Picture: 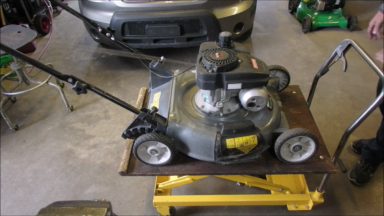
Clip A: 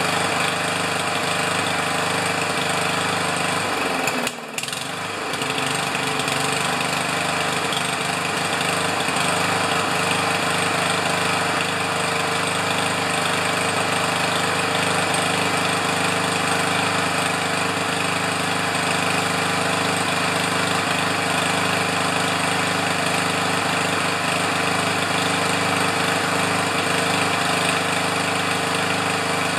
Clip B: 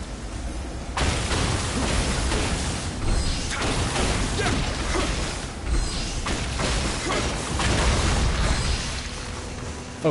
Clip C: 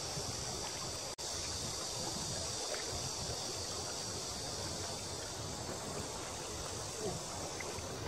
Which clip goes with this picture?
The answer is A